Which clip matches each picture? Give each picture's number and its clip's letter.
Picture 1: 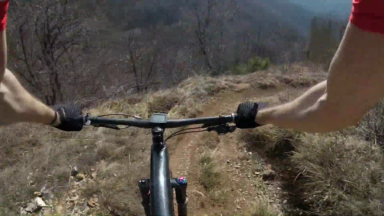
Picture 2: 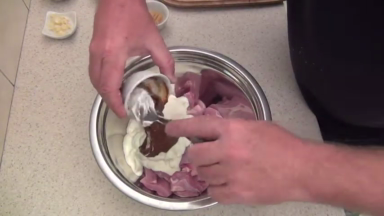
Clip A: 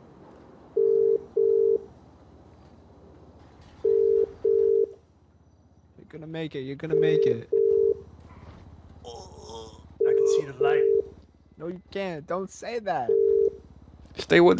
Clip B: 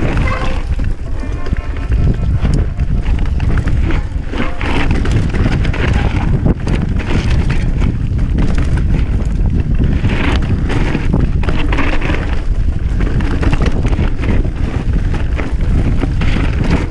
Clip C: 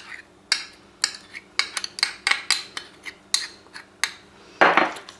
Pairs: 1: B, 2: C